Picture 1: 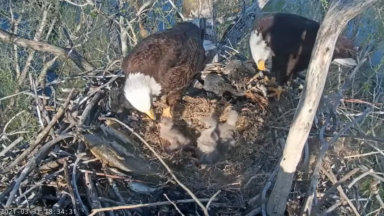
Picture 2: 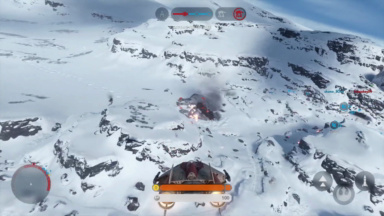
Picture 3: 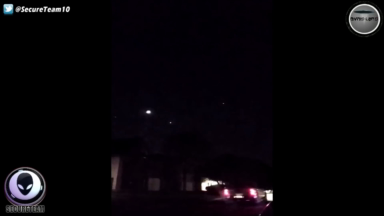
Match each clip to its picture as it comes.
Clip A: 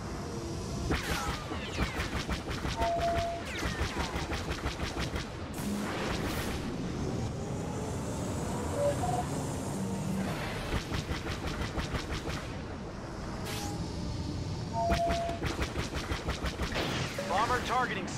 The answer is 2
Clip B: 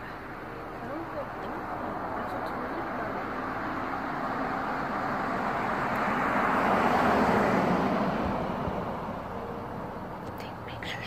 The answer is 3